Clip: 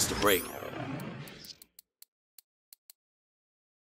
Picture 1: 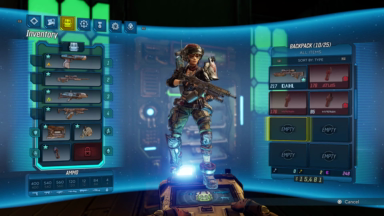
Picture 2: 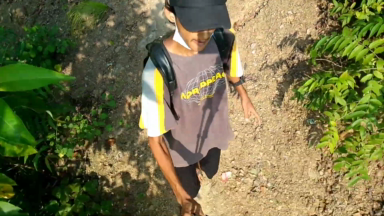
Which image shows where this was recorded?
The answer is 1